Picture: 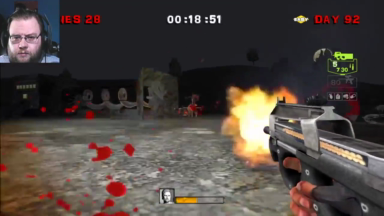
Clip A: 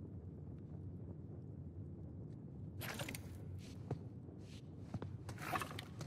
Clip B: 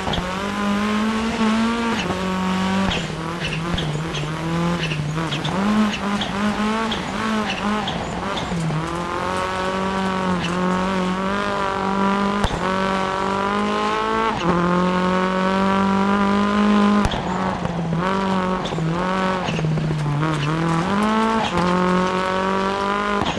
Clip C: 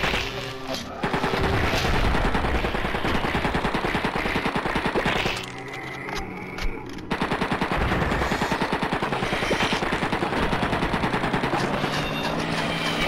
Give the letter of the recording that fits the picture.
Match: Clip C